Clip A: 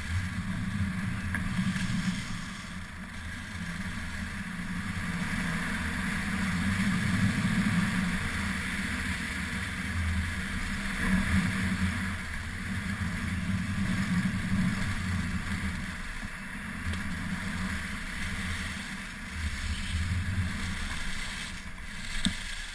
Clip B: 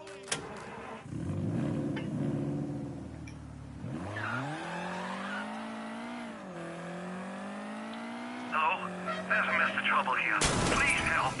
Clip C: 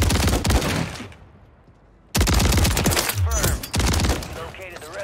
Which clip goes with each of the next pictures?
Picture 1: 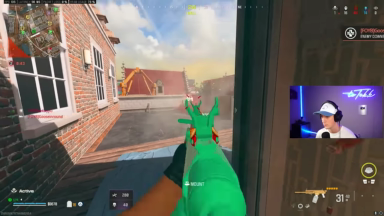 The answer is C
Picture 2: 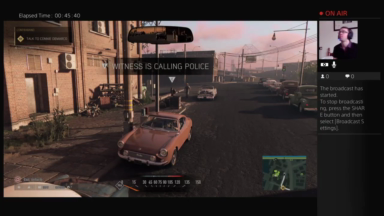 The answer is B